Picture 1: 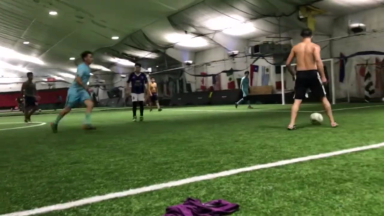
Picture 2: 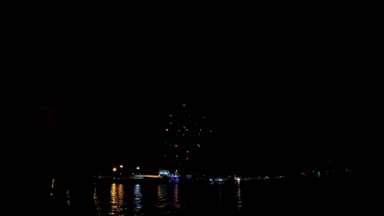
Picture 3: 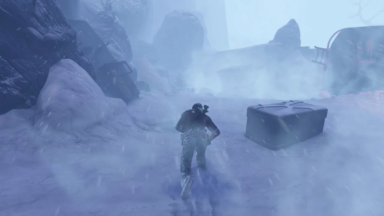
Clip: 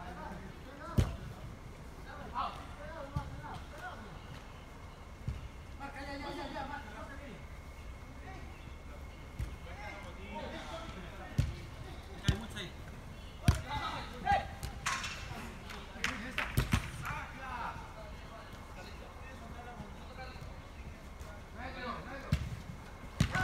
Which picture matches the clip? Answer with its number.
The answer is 1